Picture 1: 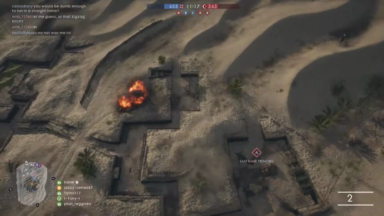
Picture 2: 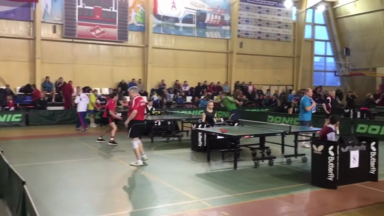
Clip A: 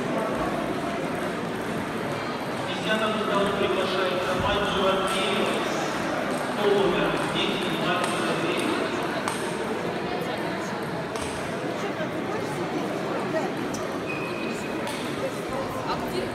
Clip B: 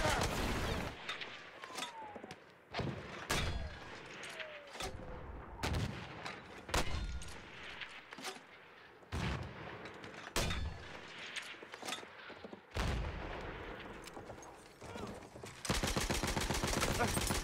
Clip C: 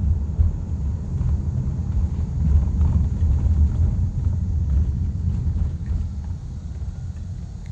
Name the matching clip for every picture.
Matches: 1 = B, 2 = A